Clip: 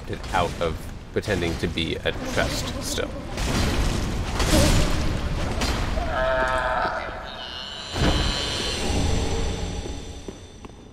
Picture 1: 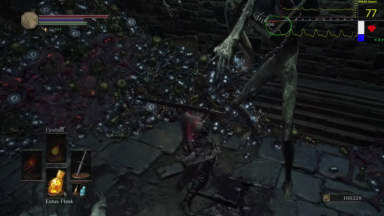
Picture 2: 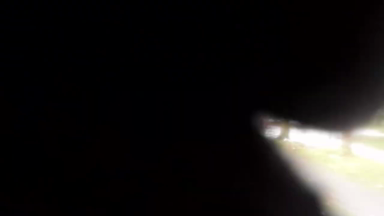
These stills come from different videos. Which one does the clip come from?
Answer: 1